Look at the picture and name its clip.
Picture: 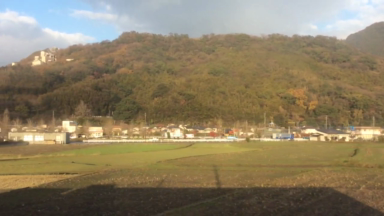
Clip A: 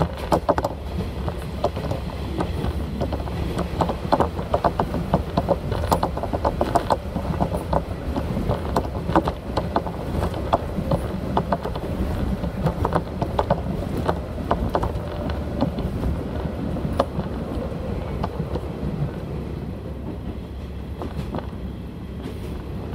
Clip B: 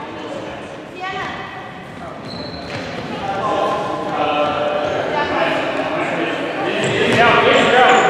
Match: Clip A